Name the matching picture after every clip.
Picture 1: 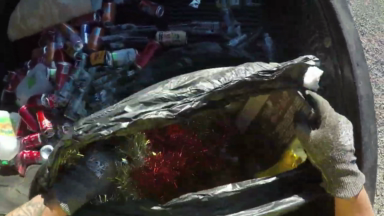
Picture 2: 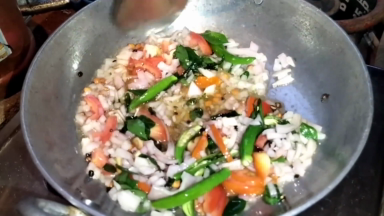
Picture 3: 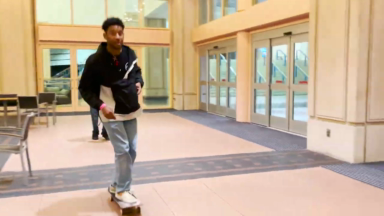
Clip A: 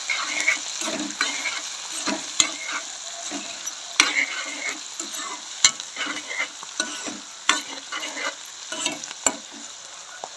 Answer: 2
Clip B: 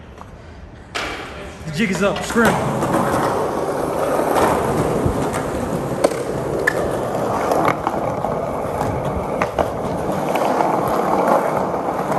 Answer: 3